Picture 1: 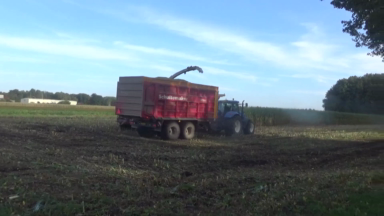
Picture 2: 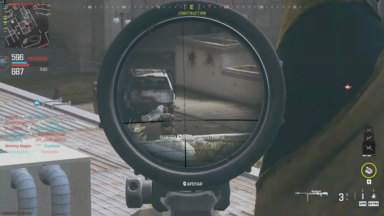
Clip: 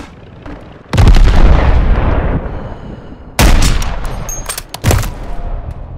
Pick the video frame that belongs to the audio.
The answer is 2